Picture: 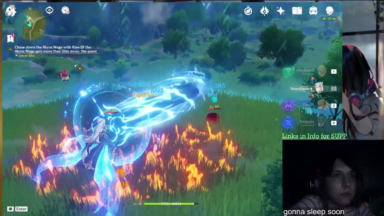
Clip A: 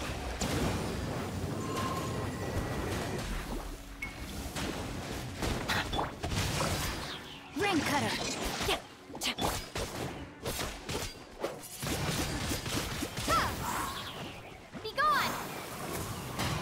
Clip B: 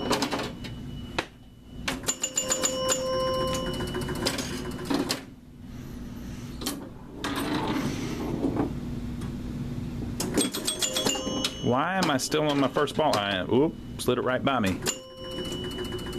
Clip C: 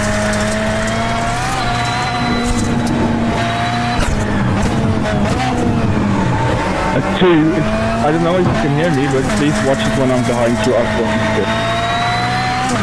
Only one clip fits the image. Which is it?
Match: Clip A